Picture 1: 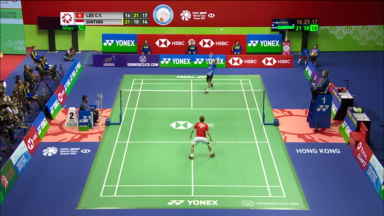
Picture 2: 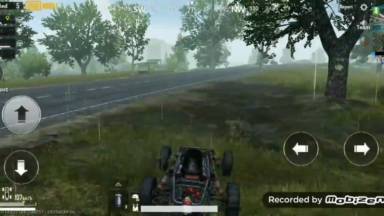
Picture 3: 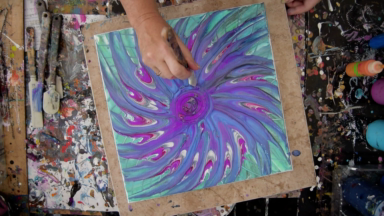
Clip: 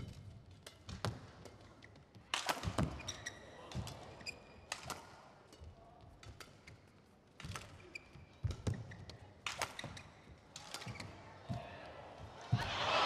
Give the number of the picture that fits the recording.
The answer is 1